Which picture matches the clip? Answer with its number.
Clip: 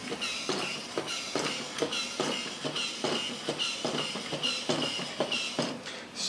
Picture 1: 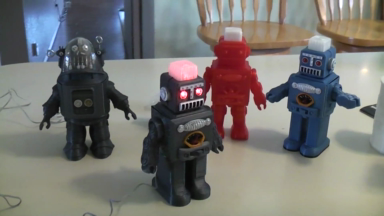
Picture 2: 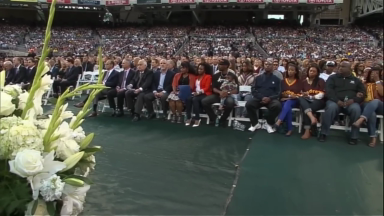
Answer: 1